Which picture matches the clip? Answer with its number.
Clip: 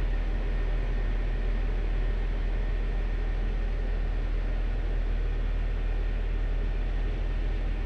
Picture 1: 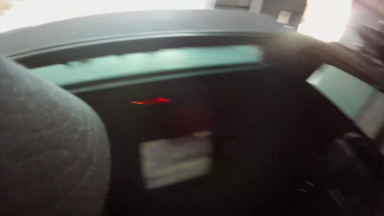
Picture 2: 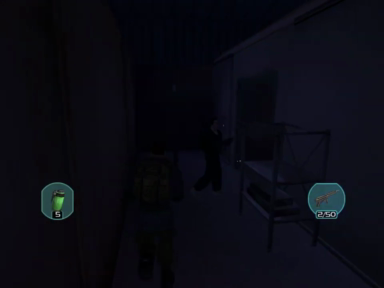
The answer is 1